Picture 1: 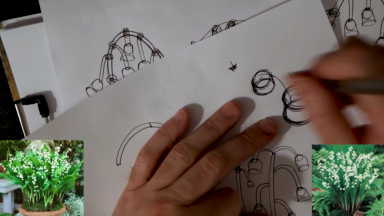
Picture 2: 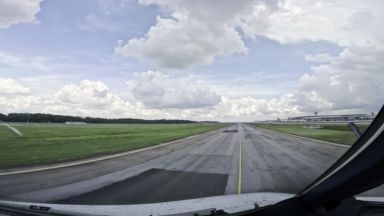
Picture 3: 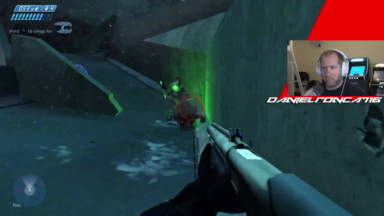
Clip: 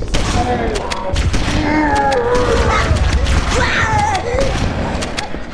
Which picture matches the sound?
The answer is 3